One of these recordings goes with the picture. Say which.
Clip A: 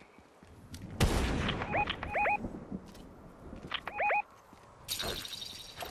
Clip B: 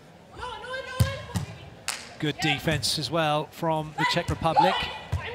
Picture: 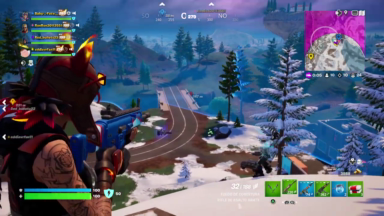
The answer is A